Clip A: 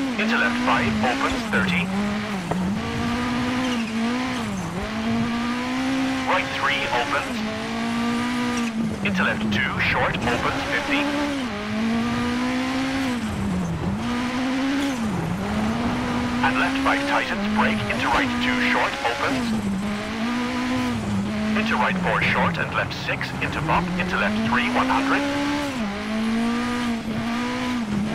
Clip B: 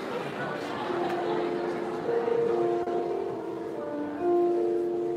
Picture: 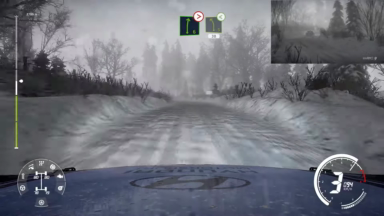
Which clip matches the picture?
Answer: A